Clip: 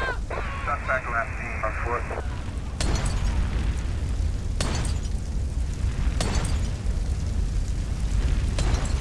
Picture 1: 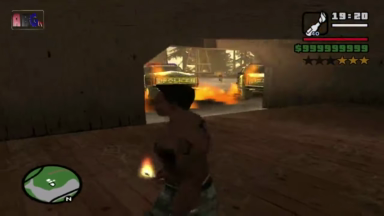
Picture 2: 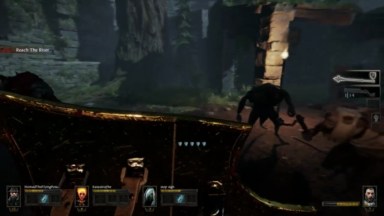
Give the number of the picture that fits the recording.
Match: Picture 1